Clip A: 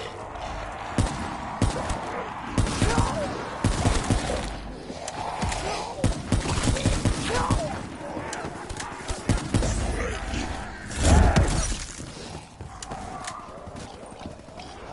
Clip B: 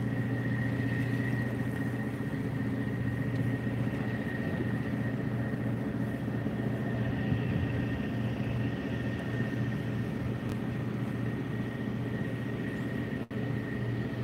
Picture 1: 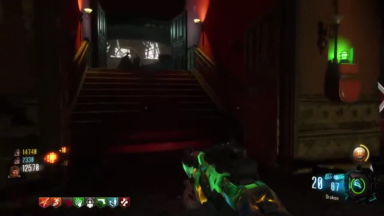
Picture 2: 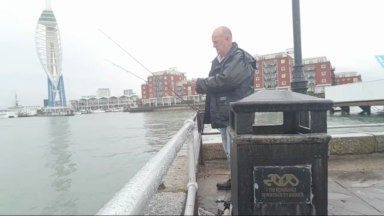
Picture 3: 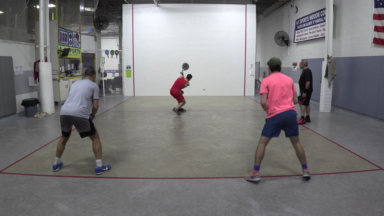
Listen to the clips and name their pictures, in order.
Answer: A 1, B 2